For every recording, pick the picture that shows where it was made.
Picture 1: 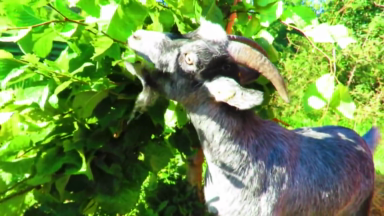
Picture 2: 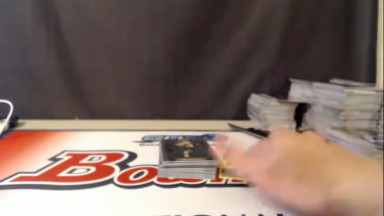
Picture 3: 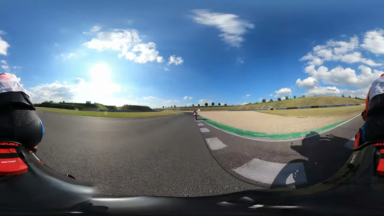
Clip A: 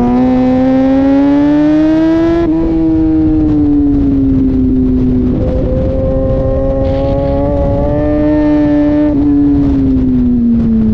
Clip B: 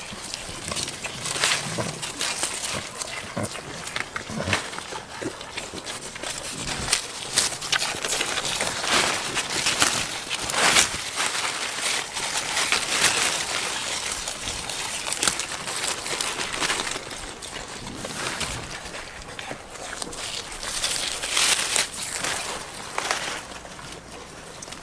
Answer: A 3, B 1